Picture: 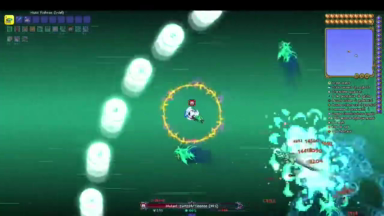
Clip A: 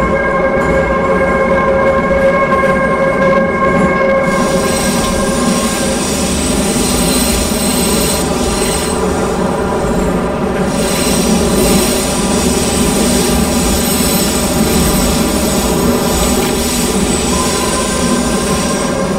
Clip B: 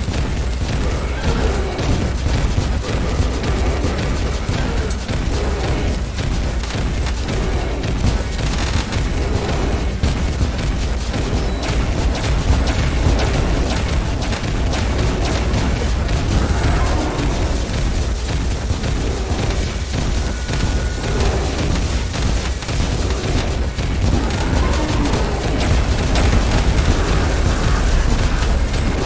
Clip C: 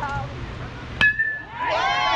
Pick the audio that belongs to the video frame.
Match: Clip B